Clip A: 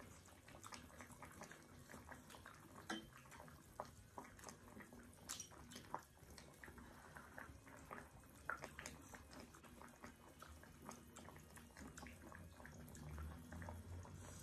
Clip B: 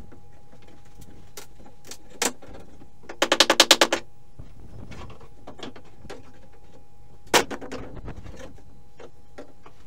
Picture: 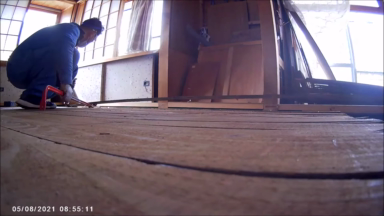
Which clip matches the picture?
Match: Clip B